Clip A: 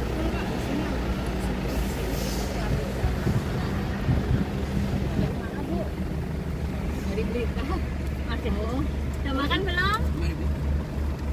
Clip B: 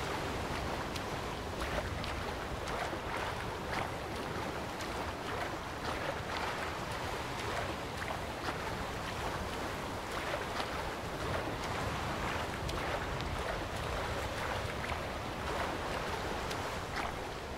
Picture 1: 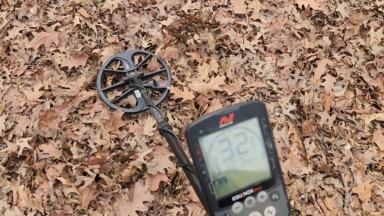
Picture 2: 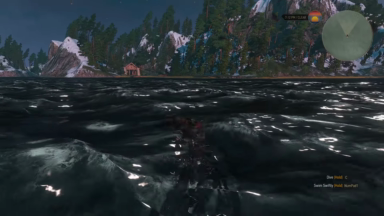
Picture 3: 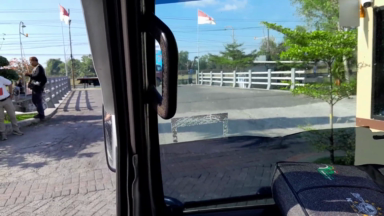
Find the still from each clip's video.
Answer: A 3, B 2